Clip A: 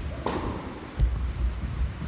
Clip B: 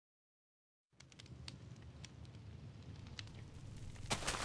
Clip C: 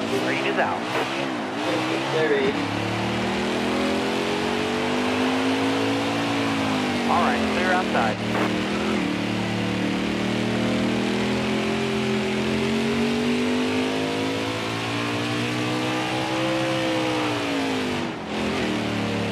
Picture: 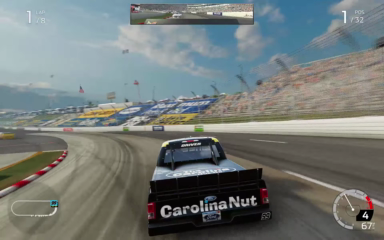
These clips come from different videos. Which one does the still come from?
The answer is C